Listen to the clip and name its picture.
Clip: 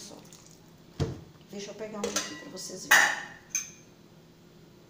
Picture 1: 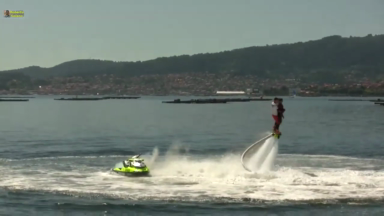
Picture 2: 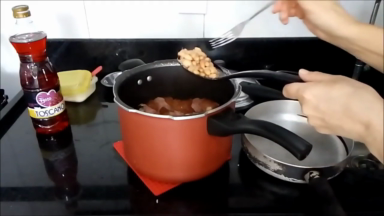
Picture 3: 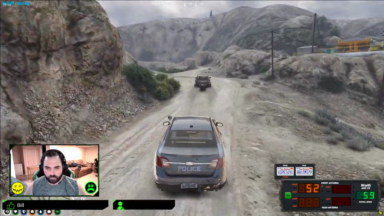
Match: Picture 2